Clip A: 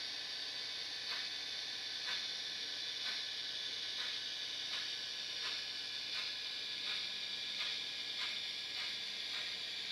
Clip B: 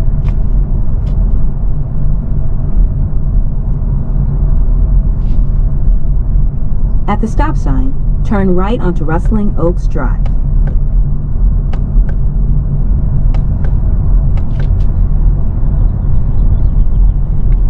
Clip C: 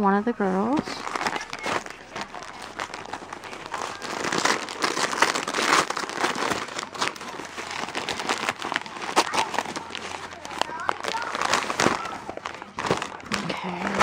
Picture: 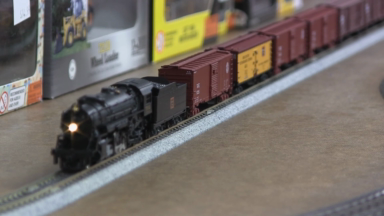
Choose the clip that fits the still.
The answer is A